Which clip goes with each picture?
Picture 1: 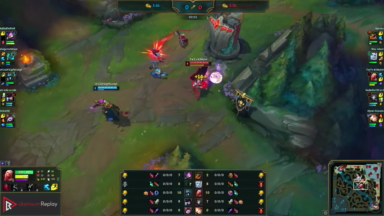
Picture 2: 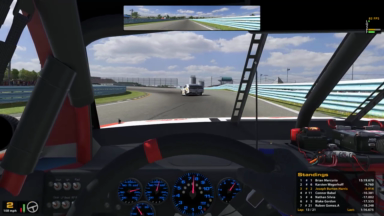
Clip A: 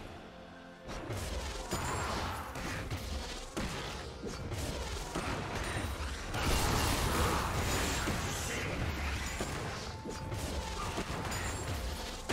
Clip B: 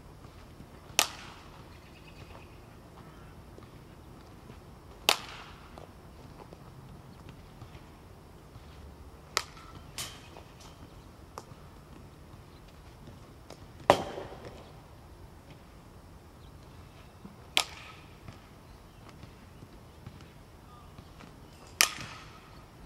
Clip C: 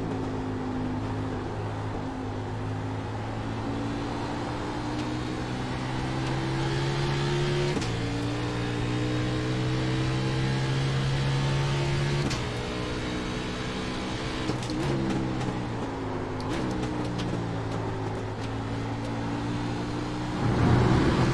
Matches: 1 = A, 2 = C